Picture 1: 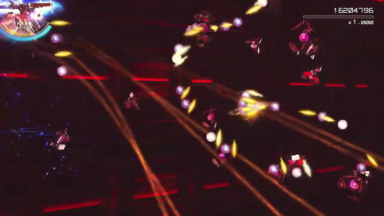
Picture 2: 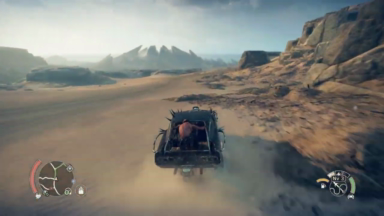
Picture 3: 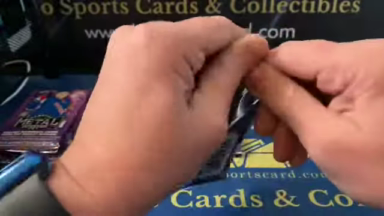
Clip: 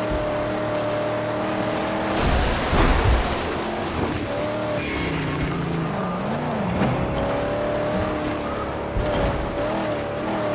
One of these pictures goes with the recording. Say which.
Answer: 2